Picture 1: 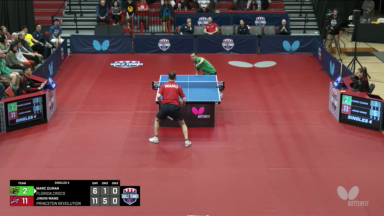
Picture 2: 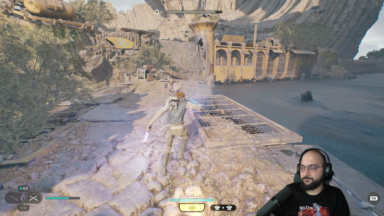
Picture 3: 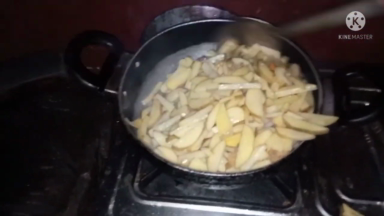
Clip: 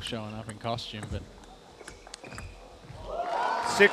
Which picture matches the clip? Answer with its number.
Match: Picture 1